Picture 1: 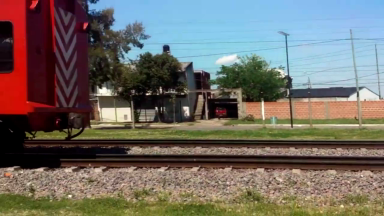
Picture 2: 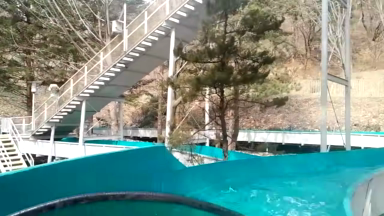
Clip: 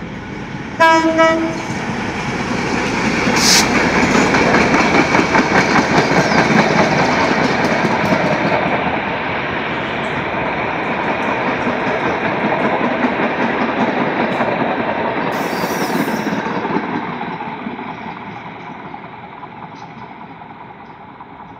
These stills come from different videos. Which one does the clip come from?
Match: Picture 1